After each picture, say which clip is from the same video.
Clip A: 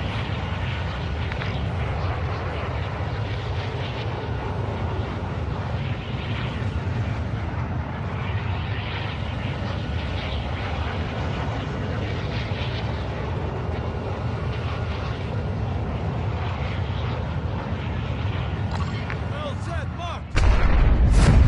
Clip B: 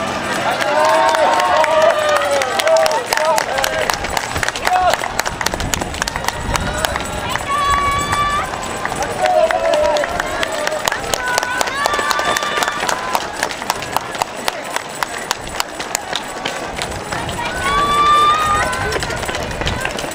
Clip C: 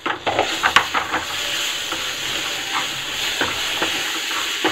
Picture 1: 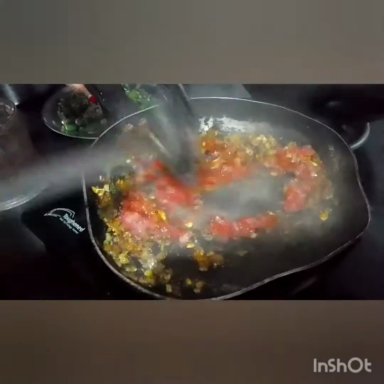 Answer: C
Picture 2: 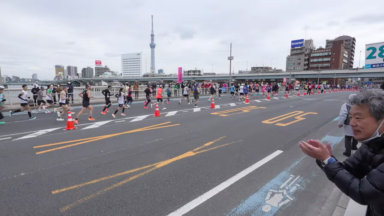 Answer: B